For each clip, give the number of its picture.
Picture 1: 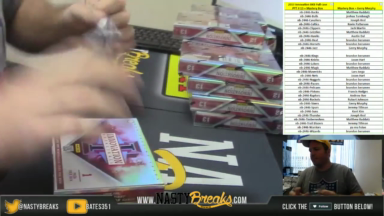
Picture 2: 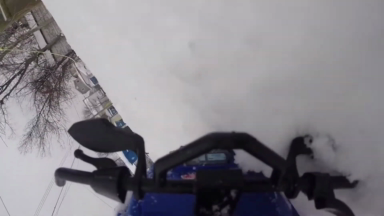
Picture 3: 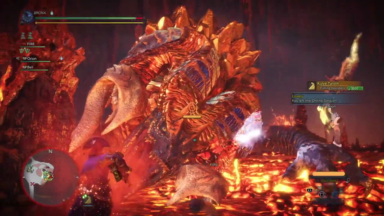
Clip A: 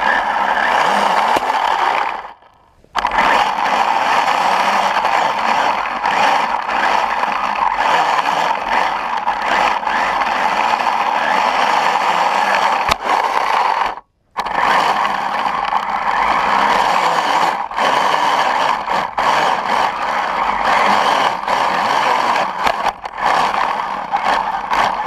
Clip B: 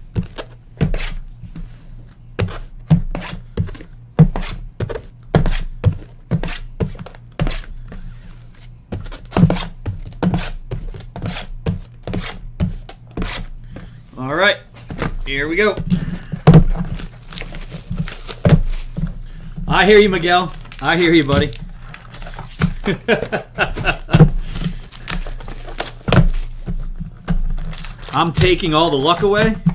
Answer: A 2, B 1